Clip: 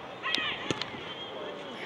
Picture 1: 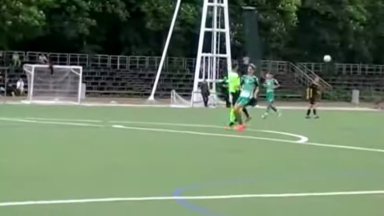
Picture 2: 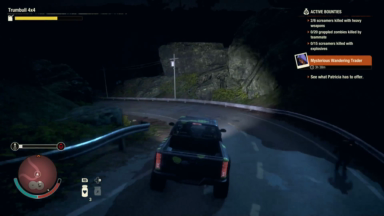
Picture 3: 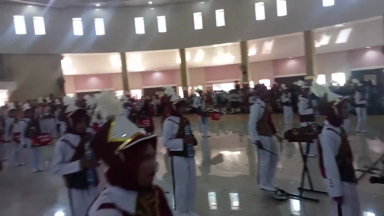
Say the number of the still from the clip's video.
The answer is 1